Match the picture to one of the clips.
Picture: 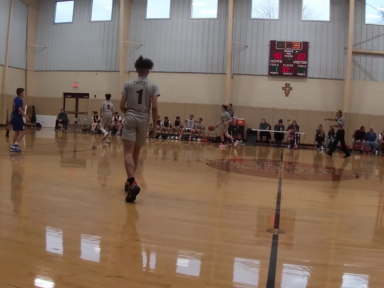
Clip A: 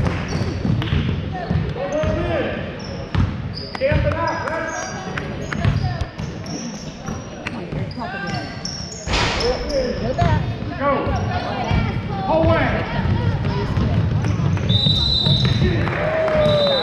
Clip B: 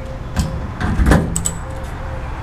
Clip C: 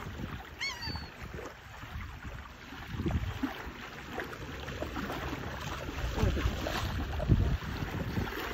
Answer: A